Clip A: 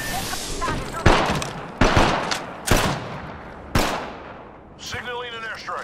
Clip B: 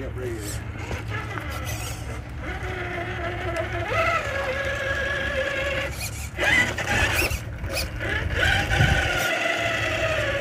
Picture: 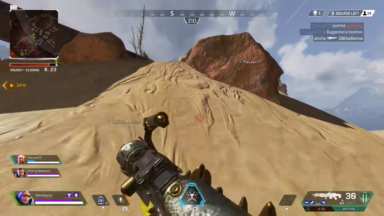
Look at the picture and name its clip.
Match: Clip A